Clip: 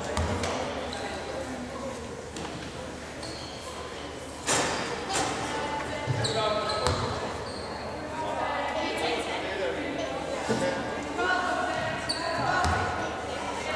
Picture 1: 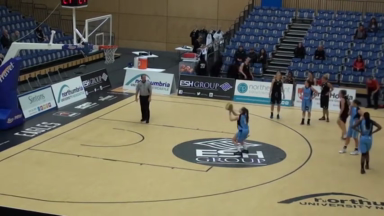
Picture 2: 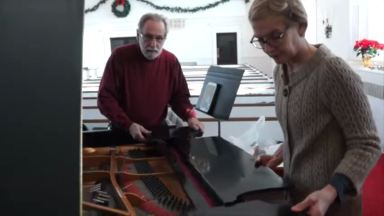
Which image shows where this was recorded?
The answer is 1